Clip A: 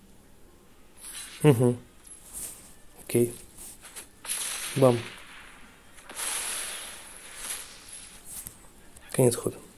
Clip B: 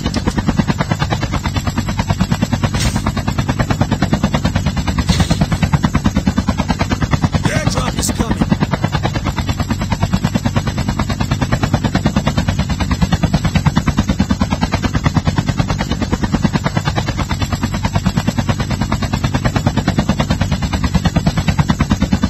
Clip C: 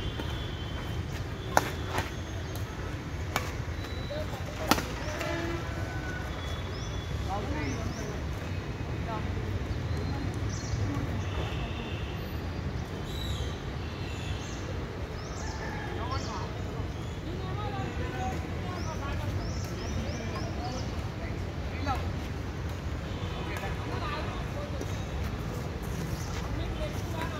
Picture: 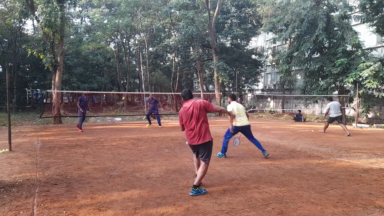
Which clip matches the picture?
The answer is C